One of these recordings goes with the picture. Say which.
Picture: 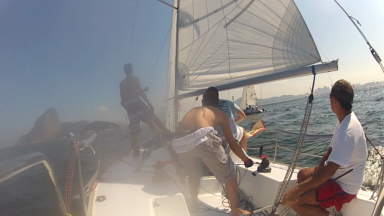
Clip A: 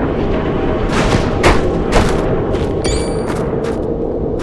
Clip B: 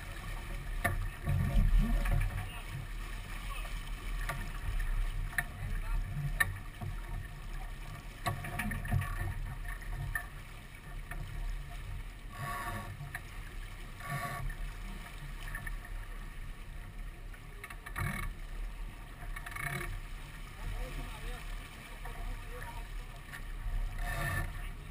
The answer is B